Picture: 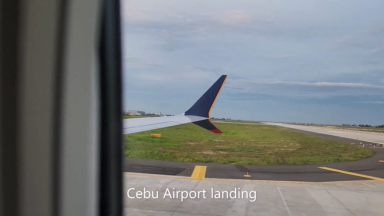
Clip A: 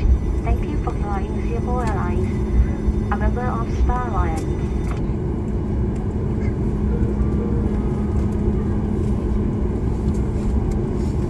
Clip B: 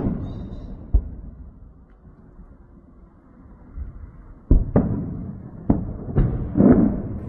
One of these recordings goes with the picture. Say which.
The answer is A